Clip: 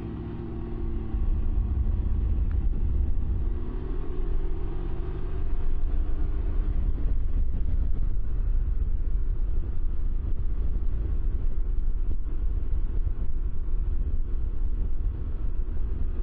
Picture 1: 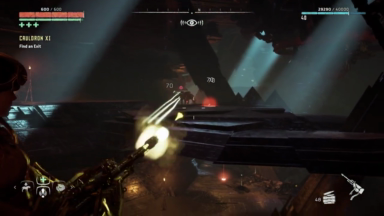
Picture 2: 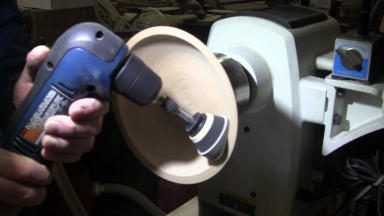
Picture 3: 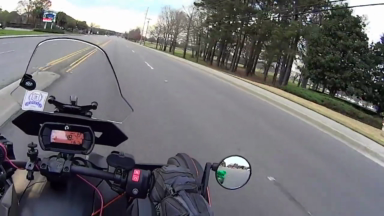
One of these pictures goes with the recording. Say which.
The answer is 3